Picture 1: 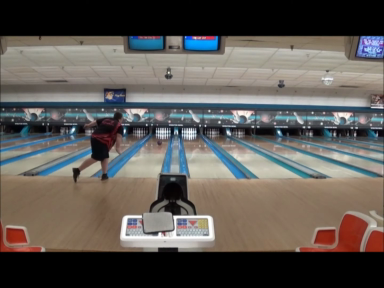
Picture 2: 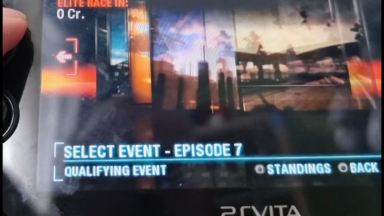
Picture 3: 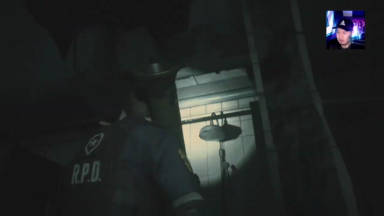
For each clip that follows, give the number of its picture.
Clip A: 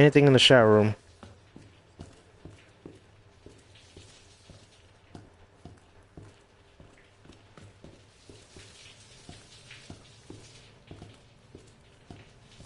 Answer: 3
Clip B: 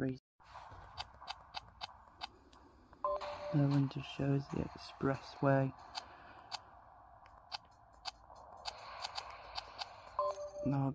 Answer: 2